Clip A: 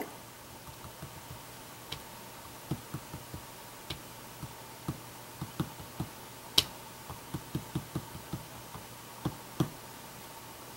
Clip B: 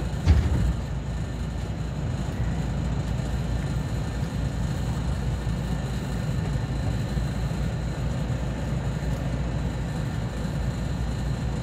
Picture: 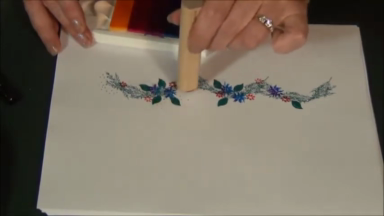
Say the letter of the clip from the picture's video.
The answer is A